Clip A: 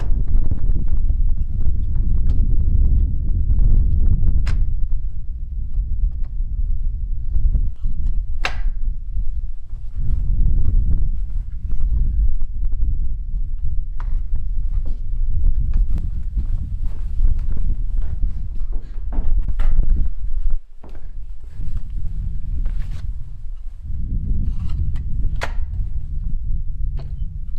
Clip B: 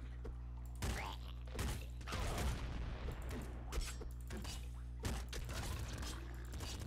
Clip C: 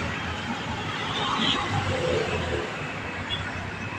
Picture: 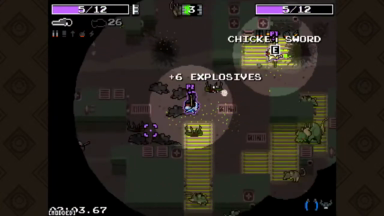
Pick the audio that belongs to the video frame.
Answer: B